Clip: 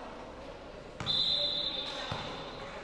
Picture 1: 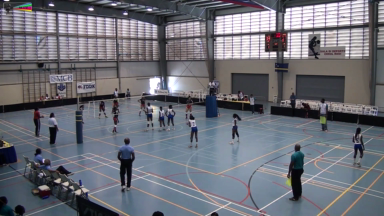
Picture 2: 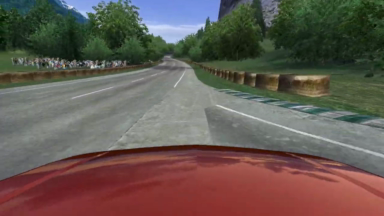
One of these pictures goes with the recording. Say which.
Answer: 1